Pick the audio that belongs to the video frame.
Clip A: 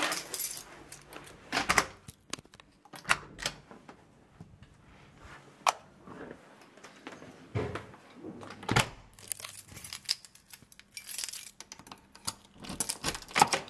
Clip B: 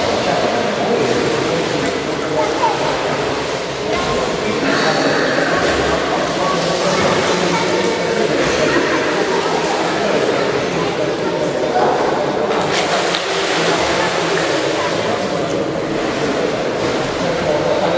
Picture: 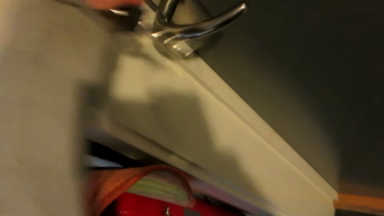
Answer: A